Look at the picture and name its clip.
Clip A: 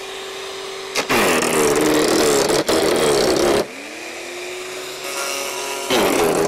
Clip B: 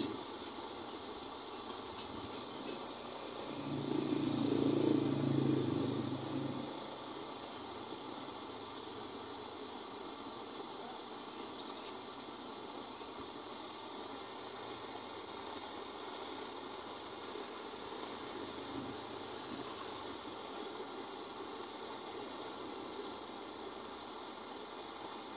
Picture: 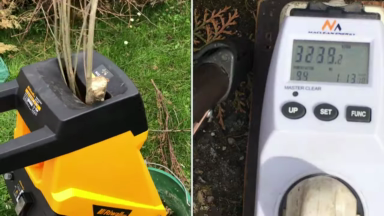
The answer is A